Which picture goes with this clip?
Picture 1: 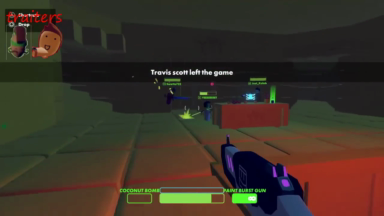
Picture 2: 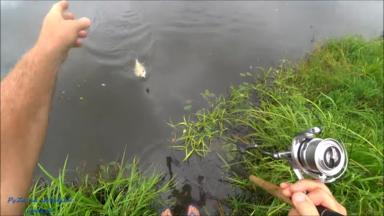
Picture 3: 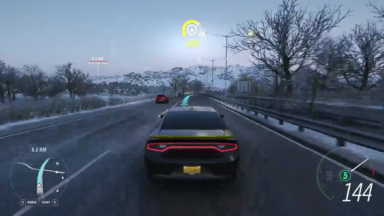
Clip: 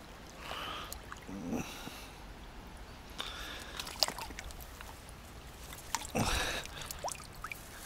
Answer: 2